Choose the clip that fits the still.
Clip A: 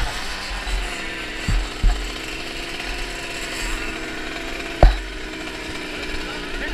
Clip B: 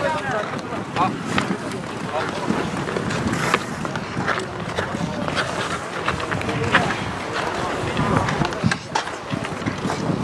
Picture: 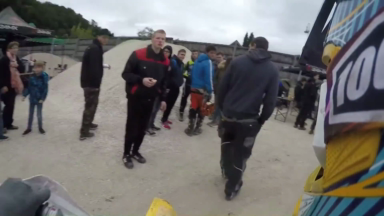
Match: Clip A